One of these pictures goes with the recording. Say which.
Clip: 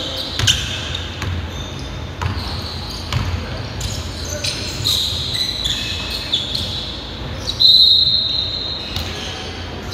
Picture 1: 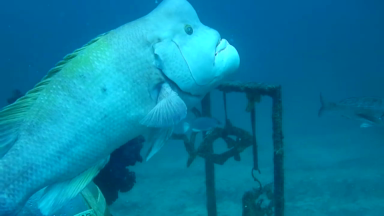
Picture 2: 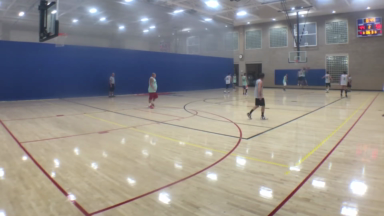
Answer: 2